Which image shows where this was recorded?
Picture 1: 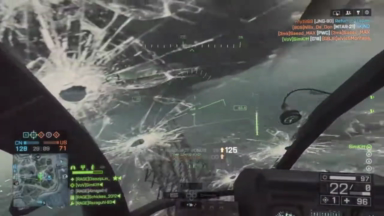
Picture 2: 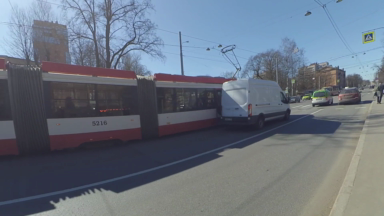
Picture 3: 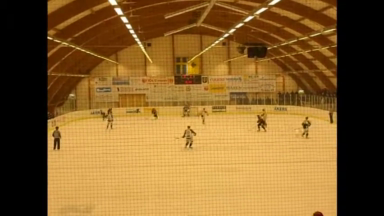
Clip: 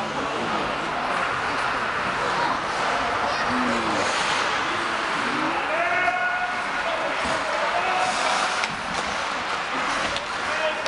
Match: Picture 3